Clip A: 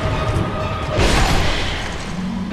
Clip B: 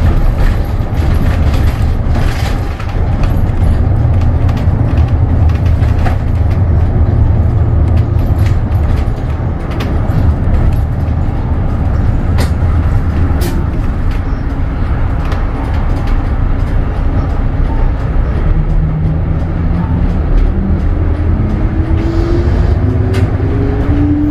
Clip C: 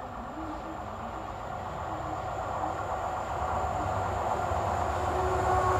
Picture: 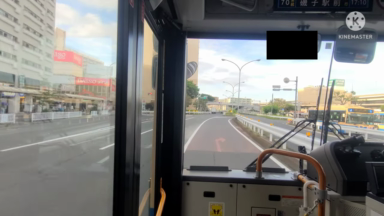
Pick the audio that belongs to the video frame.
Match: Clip B